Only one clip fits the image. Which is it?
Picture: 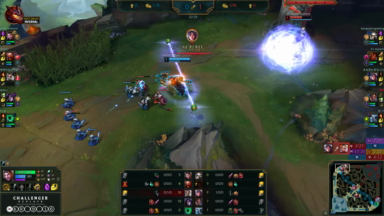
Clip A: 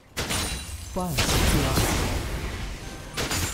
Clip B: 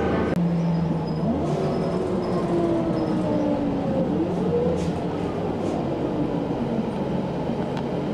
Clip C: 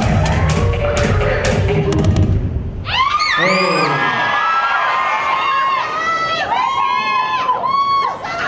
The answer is A